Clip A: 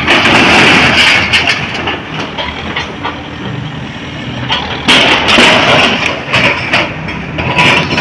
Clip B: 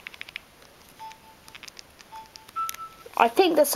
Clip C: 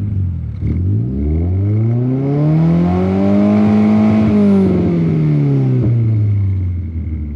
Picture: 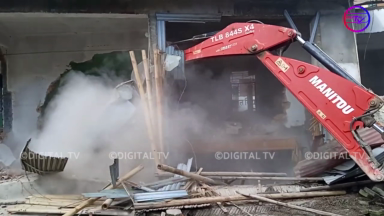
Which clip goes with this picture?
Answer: A